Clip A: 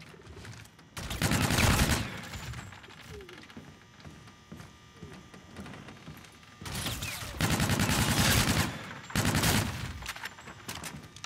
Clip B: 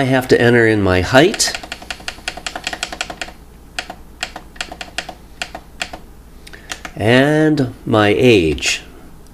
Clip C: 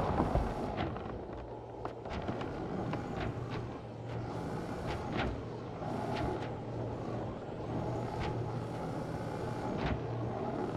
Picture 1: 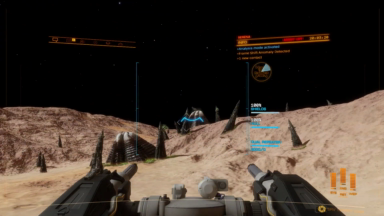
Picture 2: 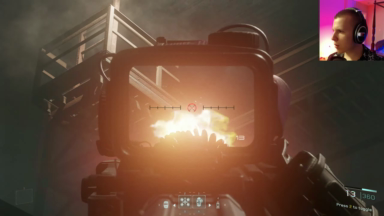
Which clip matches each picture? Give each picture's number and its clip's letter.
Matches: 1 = C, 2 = A